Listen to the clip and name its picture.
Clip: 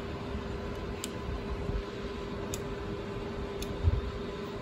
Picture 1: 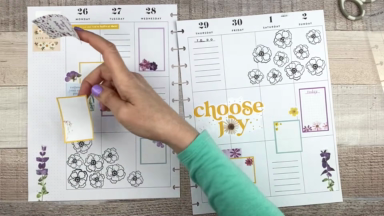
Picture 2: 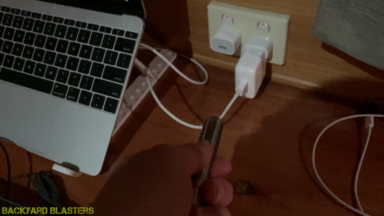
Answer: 2